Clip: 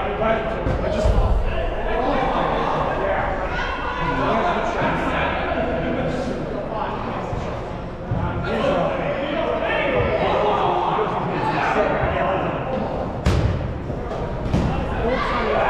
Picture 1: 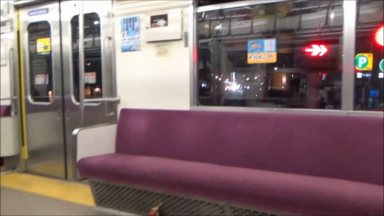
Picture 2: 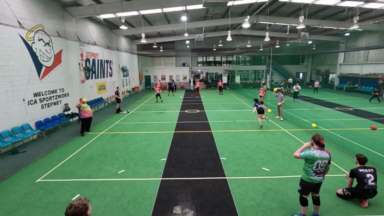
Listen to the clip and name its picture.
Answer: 2